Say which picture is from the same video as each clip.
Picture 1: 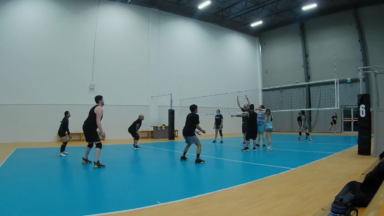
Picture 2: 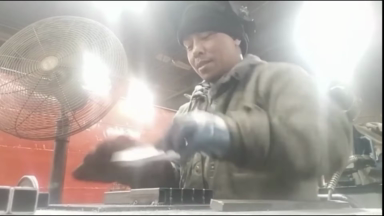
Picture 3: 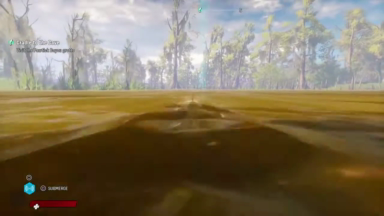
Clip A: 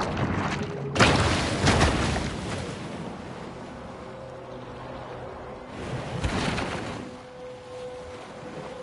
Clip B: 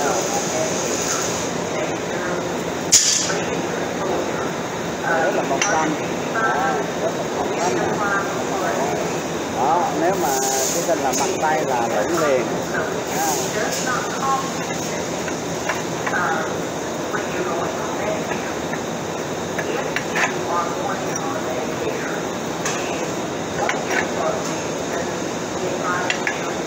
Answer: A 3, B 2